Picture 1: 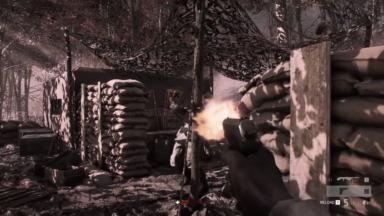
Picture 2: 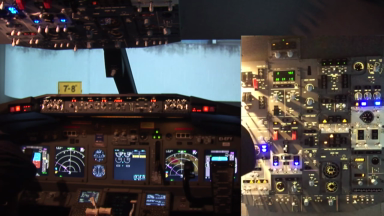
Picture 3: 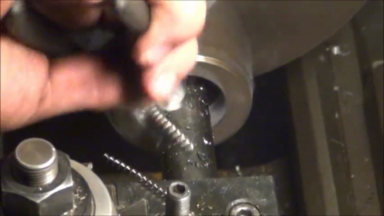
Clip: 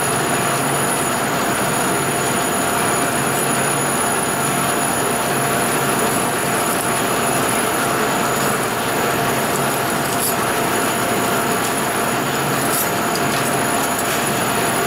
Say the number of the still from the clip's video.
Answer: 3